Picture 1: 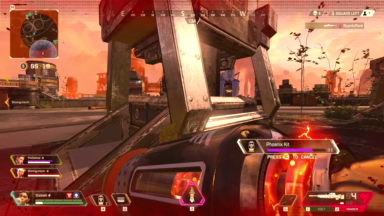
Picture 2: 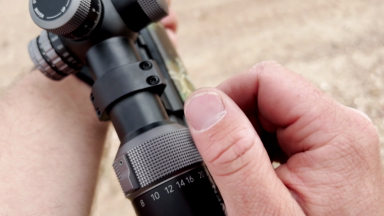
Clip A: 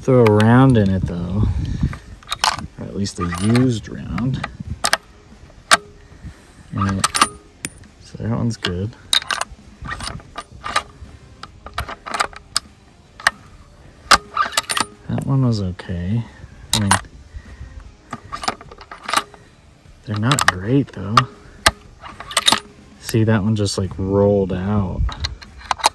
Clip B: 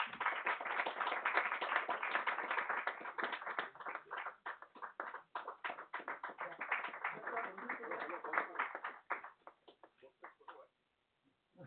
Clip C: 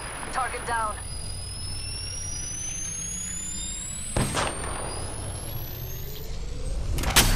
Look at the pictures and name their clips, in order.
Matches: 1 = C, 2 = A